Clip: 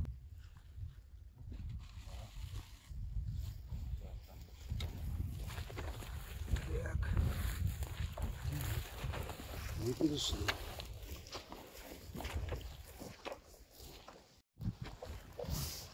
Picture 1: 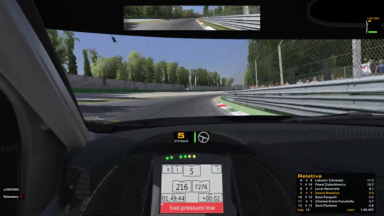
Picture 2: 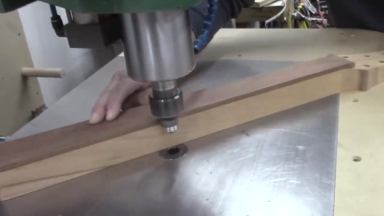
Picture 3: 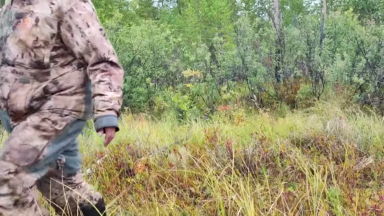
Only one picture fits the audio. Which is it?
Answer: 3